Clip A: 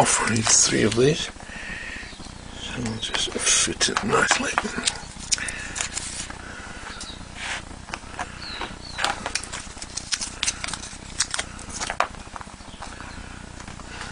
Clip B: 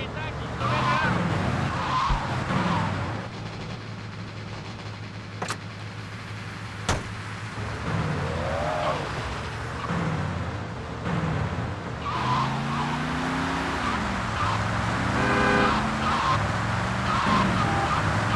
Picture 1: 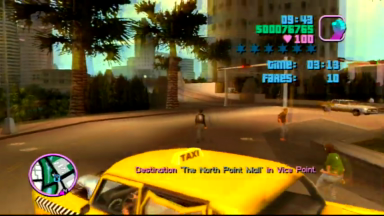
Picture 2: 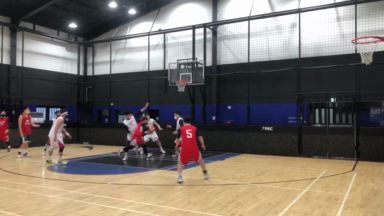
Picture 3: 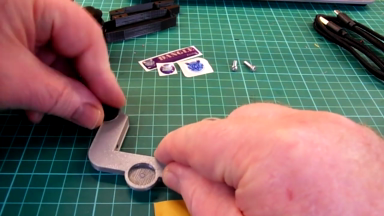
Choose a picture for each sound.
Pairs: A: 3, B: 1